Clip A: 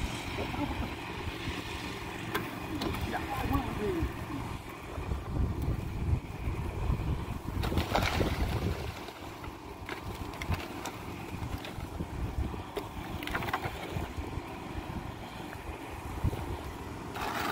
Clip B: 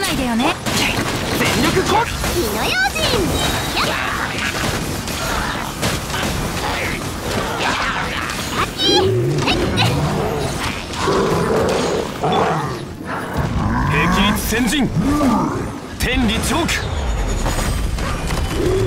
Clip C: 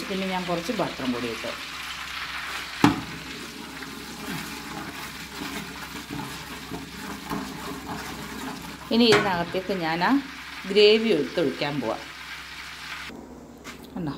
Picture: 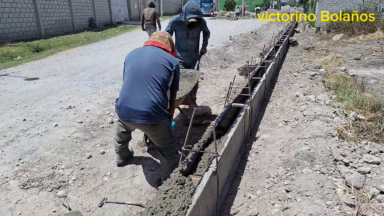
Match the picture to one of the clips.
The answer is A